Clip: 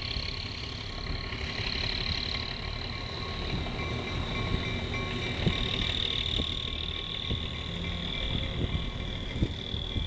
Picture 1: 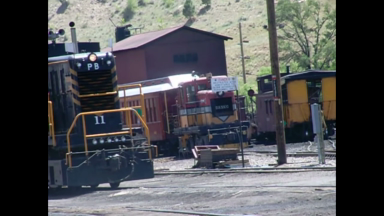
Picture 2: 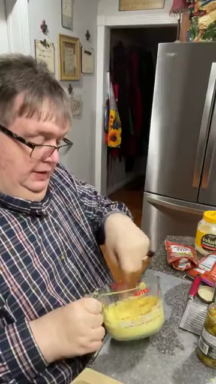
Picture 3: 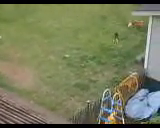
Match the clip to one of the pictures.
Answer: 1